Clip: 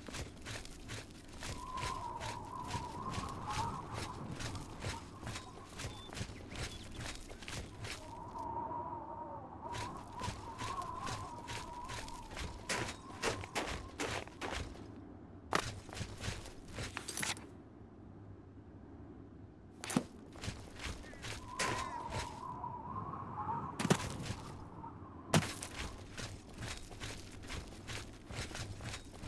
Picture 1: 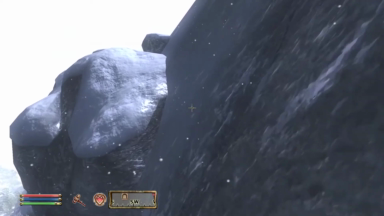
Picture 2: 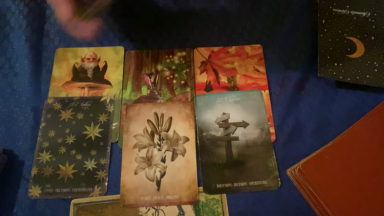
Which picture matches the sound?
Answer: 1